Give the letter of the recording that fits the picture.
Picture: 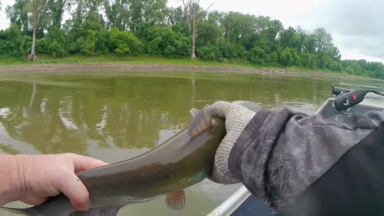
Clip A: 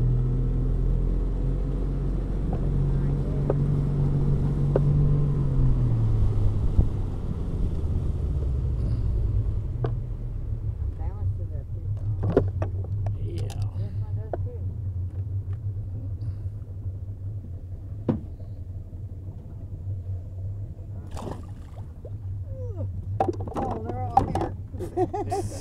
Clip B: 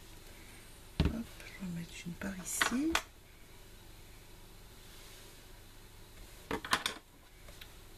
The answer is A